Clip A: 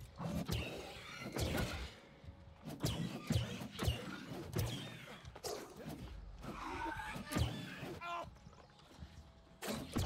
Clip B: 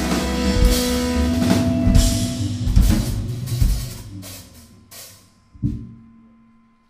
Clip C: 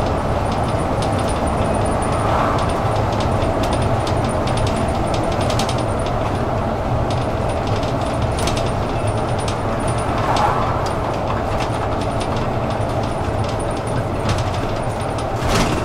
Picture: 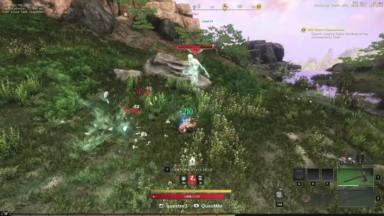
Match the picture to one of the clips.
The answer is A